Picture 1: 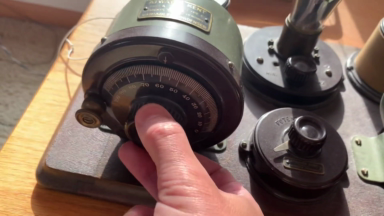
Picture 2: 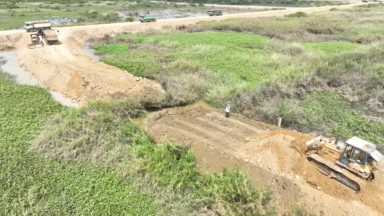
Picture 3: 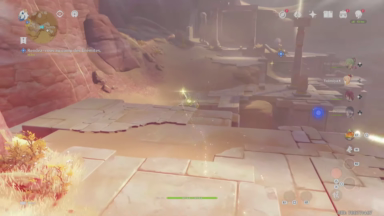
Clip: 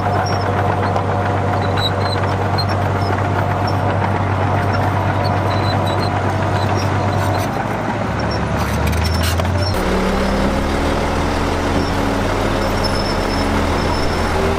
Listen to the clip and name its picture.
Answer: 2